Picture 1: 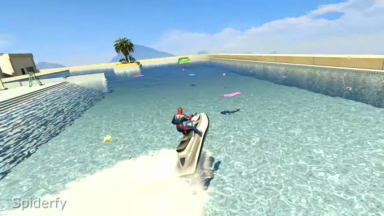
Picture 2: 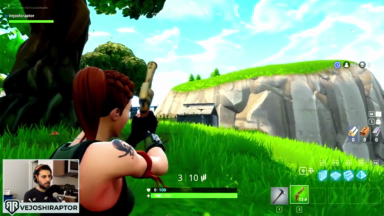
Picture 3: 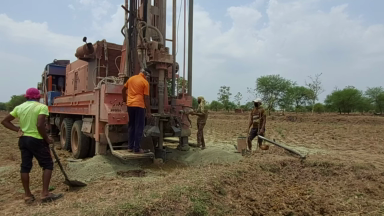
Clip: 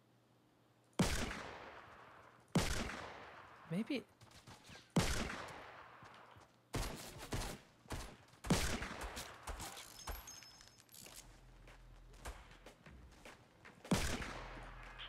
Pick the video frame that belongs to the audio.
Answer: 2